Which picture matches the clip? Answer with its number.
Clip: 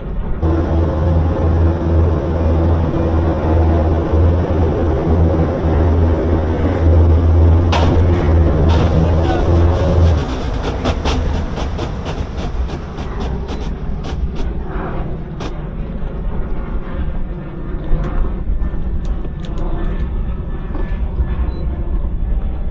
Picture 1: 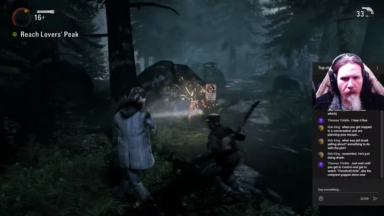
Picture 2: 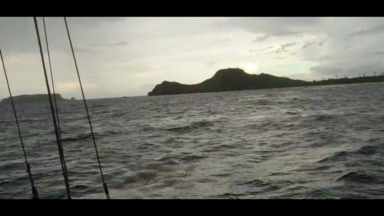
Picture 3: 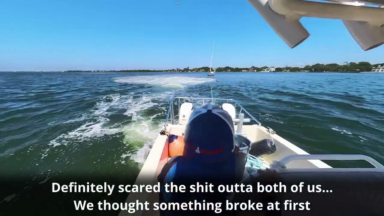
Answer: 3